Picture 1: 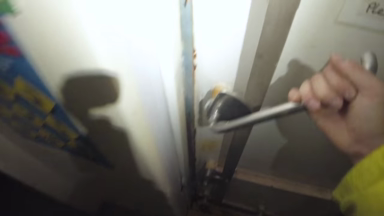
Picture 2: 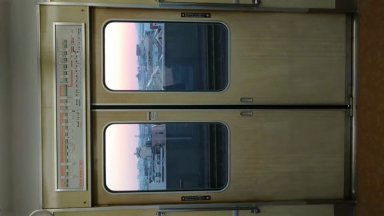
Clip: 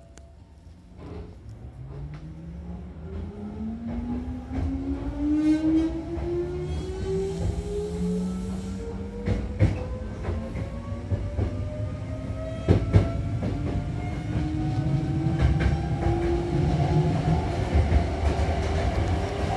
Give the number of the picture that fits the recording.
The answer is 2